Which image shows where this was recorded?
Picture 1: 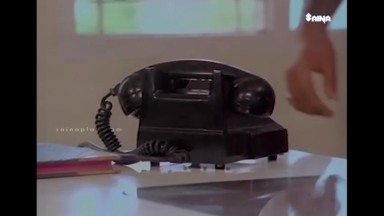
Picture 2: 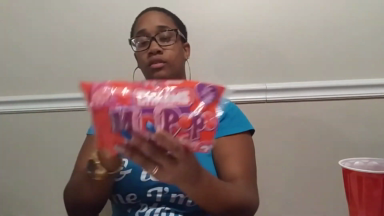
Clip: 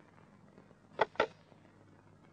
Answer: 1